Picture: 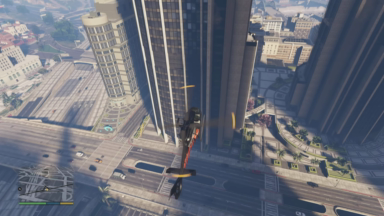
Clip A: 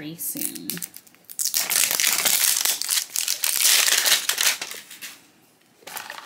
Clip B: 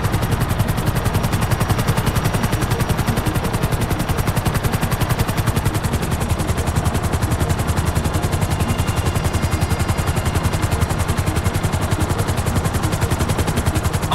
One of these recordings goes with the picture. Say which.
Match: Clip B